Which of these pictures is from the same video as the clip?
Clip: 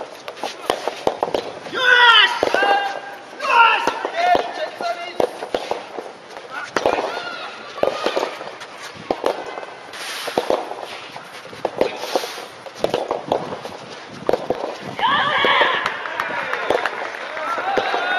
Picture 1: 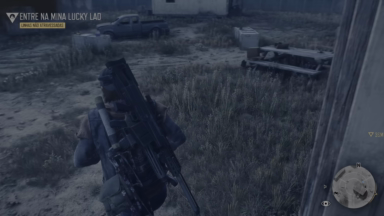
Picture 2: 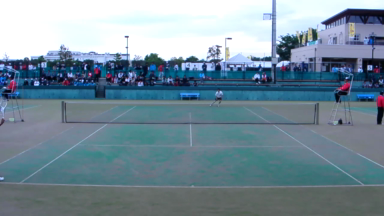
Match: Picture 2